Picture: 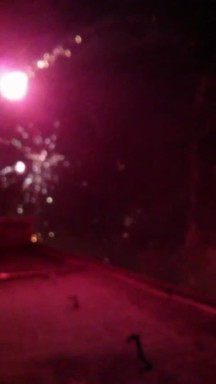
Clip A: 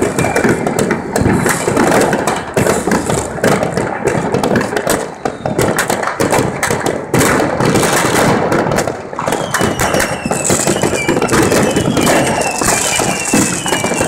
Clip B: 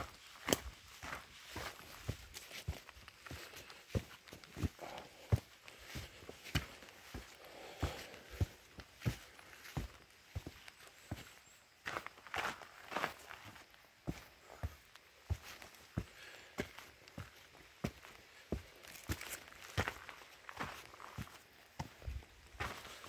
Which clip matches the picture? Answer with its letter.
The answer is A